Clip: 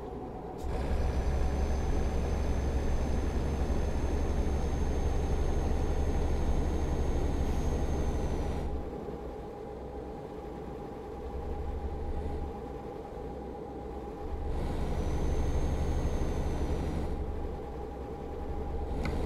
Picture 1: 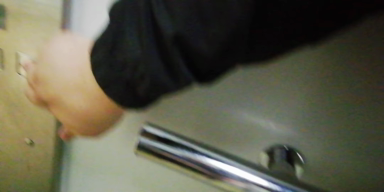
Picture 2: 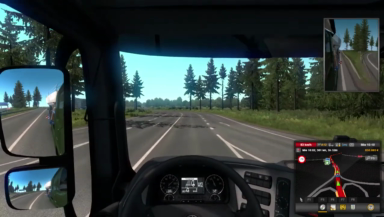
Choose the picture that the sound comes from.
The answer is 2